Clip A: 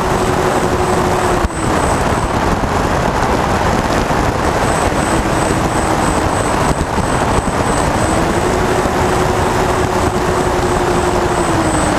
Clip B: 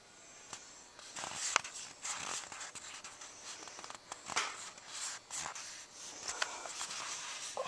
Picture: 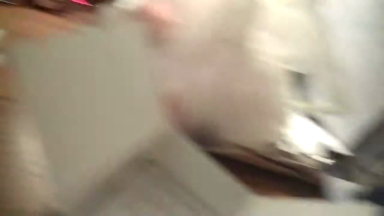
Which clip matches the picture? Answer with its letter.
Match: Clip B